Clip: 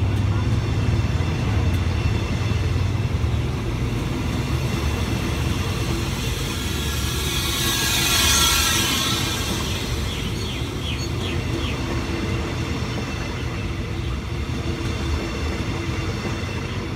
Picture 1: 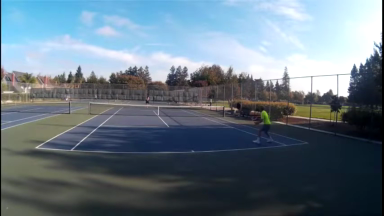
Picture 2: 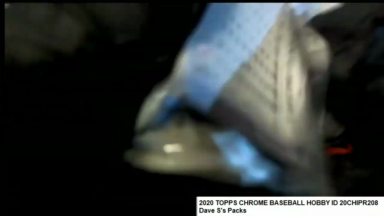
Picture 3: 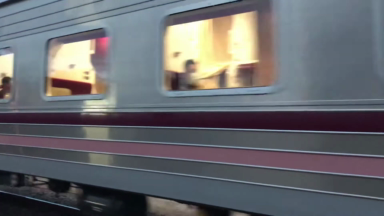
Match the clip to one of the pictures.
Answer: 3